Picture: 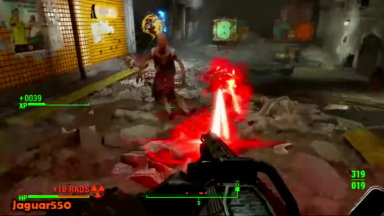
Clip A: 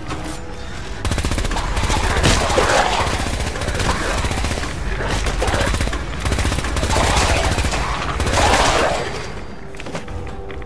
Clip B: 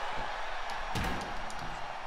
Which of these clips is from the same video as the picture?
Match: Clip A